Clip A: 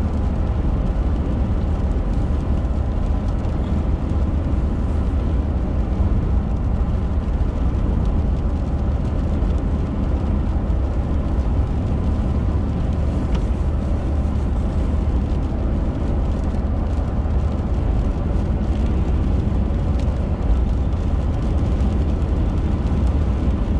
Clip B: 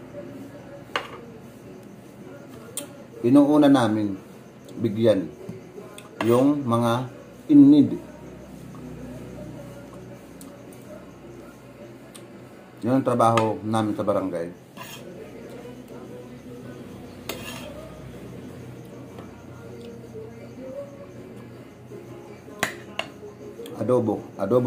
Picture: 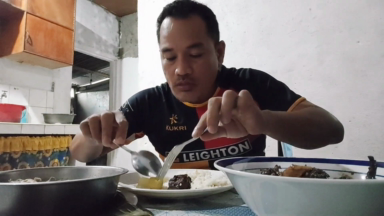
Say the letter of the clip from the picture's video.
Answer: B